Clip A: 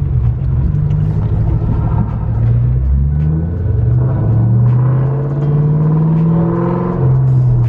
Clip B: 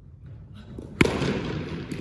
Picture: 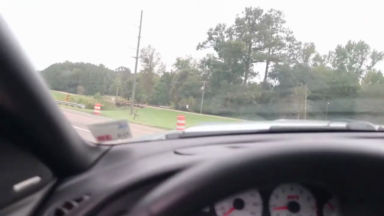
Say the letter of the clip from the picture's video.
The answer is A